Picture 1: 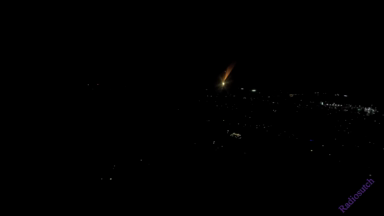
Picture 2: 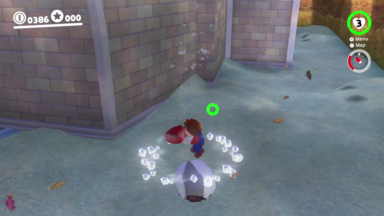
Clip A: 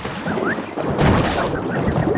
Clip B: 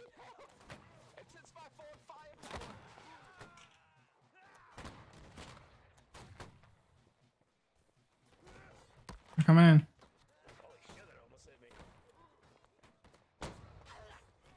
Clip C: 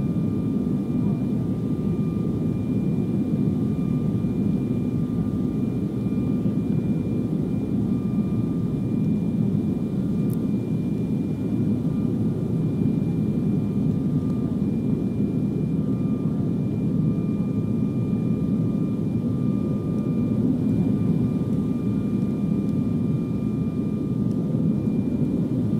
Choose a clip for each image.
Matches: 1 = C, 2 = A